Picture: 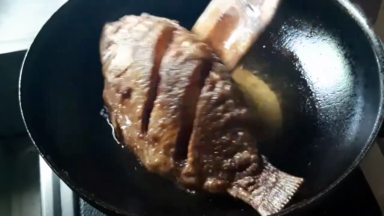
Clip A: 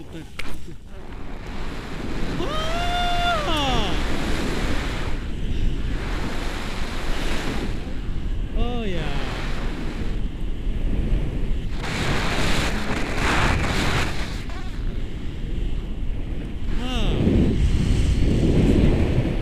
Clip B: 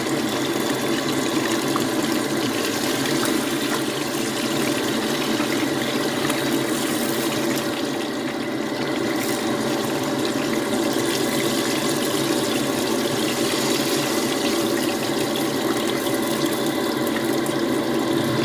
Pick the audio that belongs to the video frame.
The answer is B